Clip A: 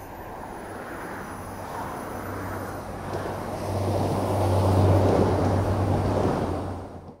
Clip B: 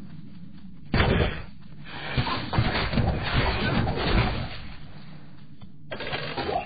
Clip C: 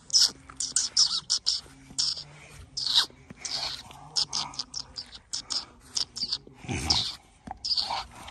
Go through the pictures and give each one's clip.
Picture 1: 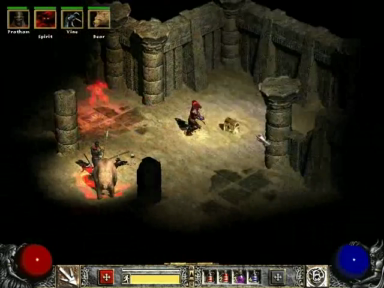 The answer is B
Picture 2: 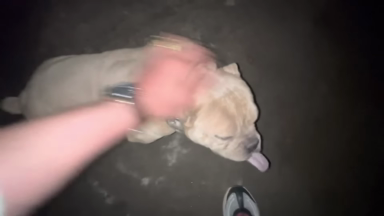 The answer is C